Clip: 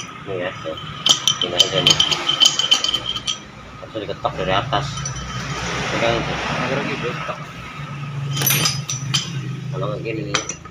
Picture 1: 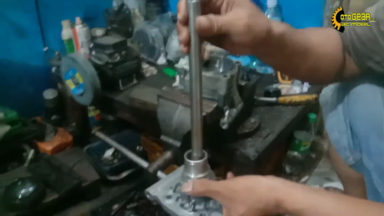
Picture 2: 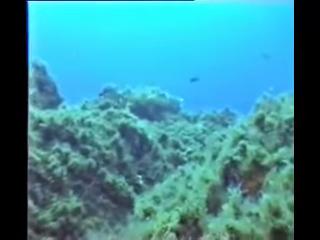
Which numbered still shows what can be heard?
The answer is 1